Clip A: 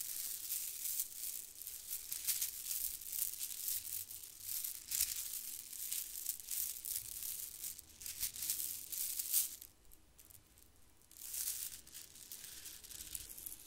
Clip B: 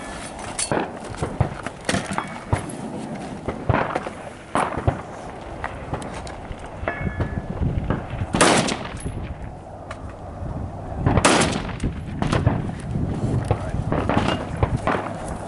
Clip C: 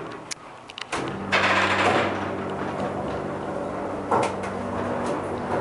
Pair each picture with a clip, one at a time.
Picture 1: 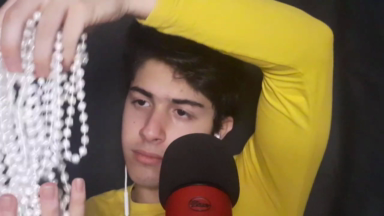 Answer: A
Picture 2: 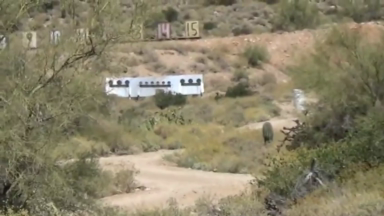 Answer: B